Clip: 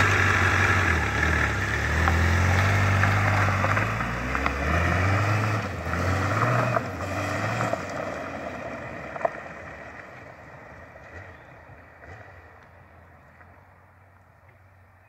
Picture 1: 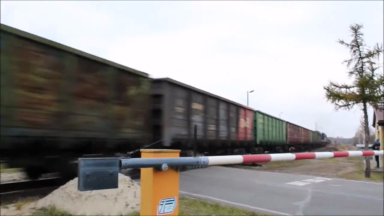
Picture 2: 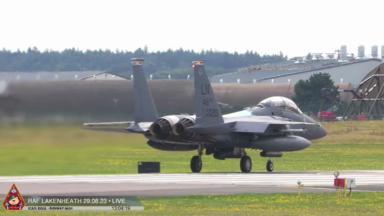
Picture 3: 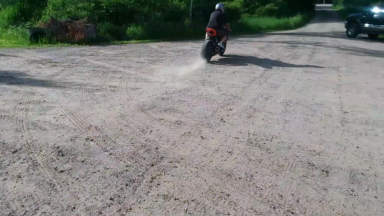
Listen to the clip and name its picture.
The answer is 3